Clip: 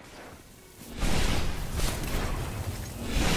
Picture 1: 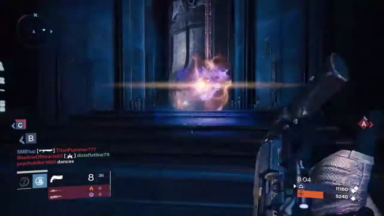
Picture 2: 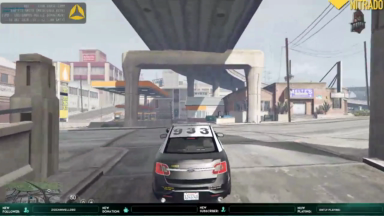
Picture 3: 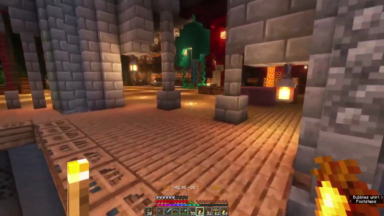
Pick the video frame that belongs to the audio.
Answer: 1